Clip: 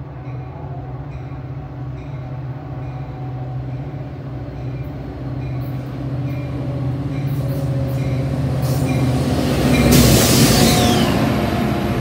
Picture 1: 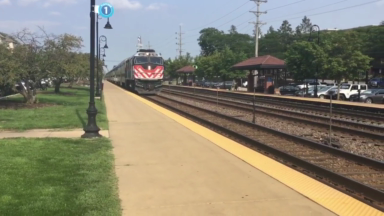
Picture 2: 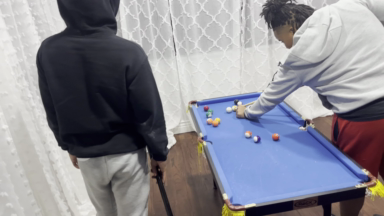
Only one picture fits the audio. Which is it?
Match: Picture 1